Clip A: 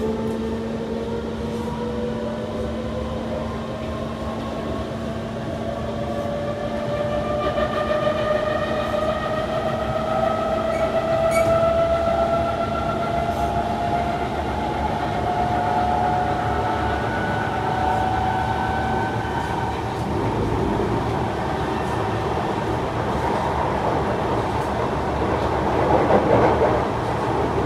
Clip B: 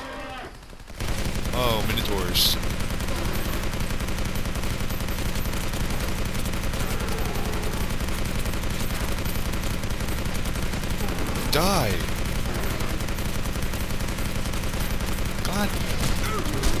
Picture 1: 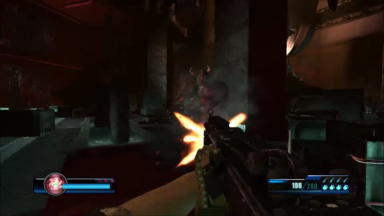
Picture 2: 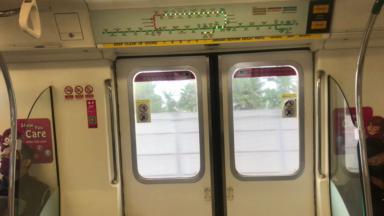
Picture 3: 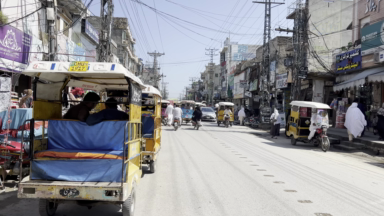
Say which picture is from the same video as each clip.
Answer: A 2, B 1